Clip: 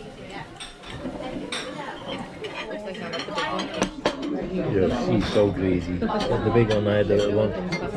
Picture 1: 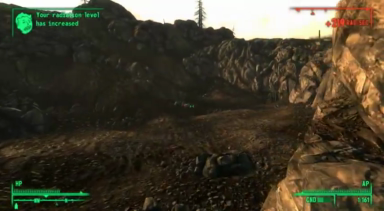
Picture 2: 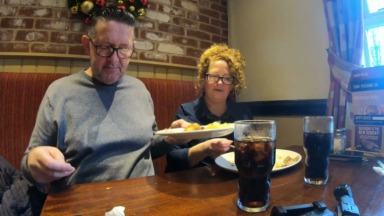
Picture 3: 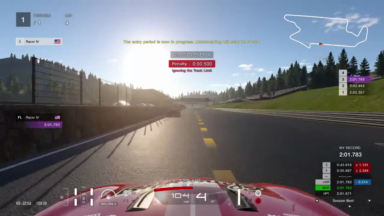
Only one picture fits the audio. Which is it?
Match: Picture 2